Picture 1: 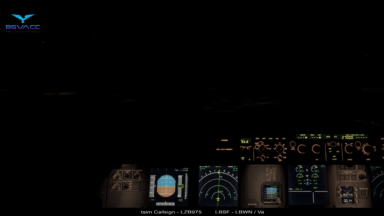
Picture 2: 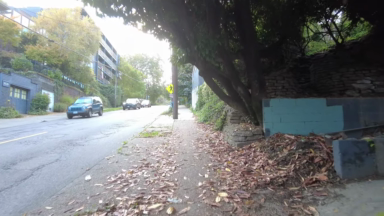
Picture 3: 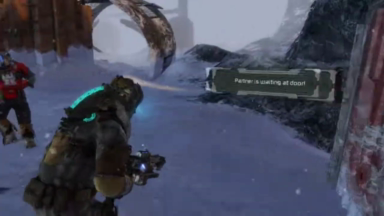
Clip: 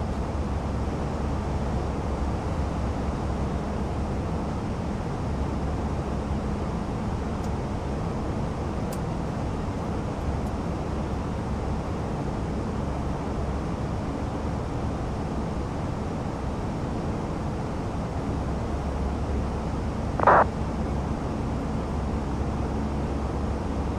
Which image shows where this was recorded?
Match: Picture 1